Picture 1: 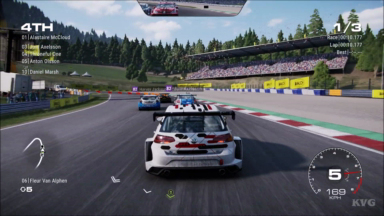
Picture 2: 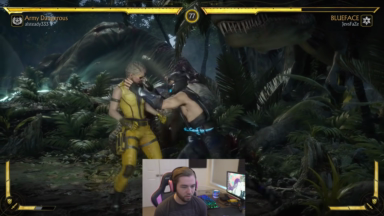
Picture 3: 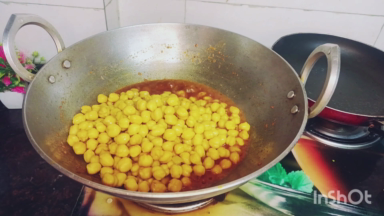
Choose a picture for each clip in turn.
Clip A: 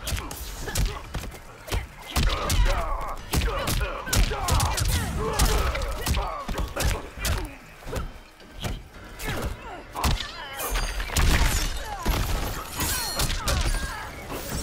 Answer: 2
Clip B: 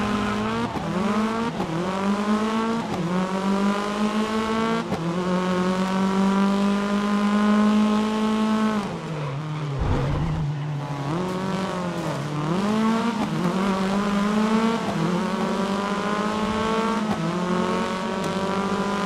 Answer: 1